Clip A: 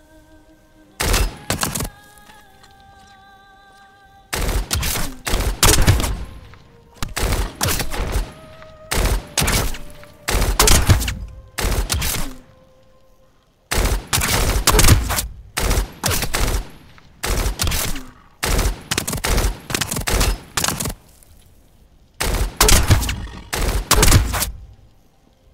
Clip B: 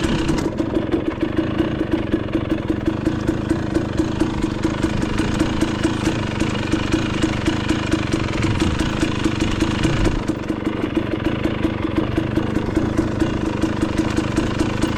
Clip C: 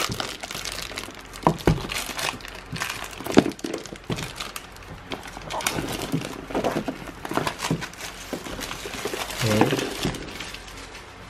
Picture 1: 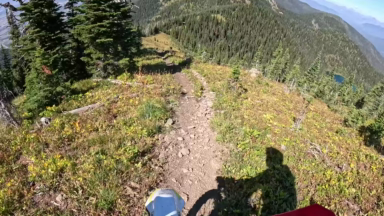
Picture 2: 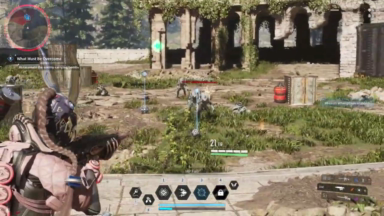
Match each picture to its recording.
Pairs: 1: B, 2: A